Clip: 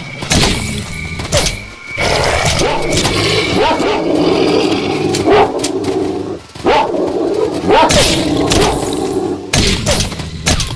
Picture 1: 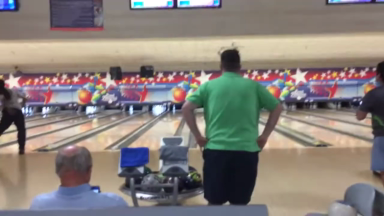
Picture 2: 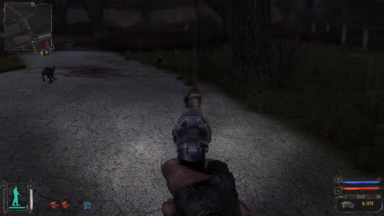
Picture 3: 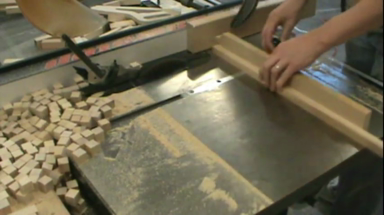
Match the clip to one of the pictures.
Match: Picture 2